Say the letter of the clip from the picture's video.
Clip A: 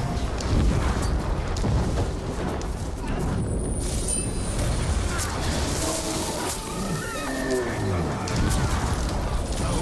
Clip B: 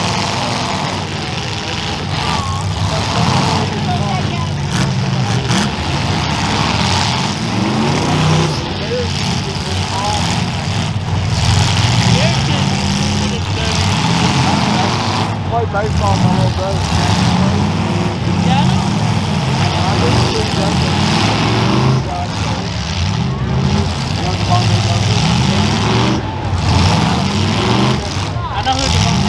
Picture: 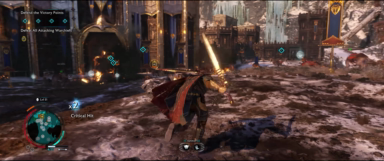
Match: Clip A